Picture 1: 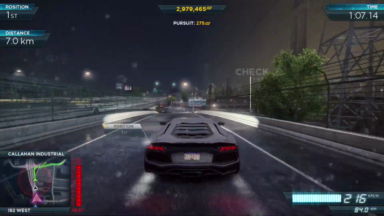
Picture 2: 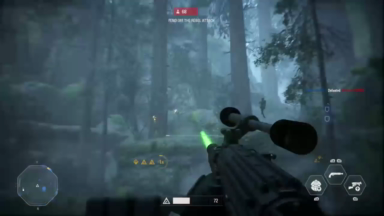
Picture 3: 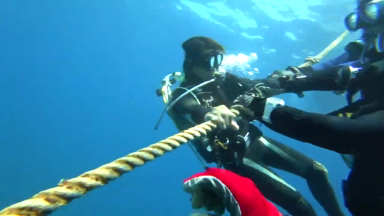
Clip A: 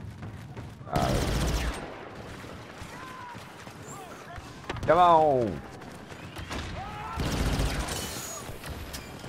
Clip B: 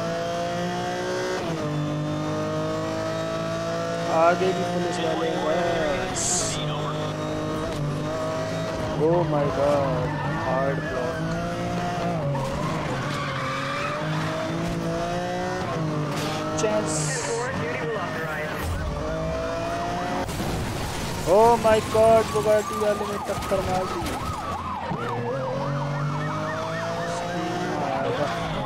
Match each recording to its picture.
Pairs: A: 2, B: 1